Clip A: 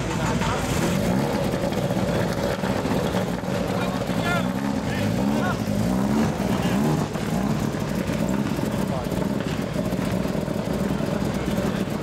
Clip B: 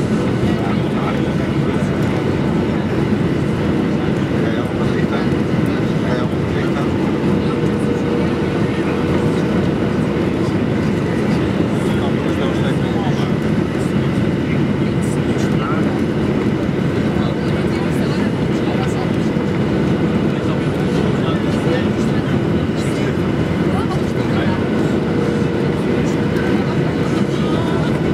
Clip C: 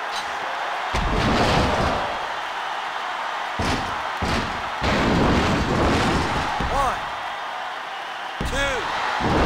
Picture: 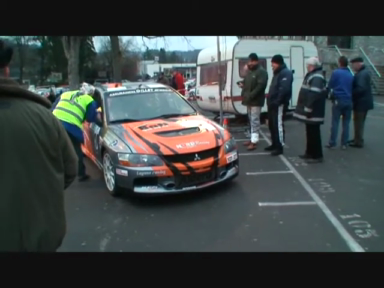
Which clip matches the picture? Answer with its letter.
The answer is A